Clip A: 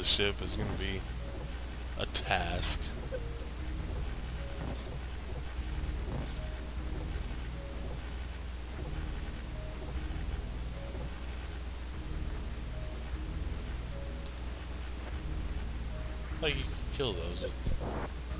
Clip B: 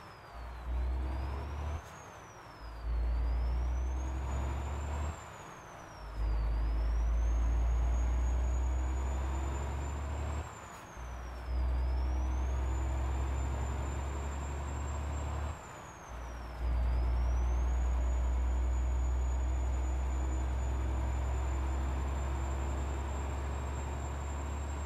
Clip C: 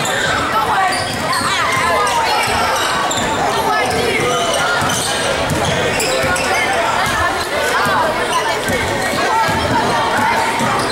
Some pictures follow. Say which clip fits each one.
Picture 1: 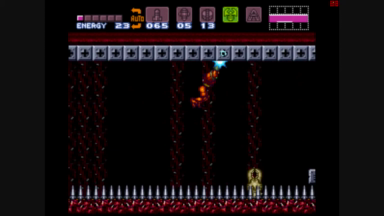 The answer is A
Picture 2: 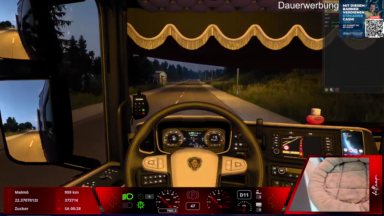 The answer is B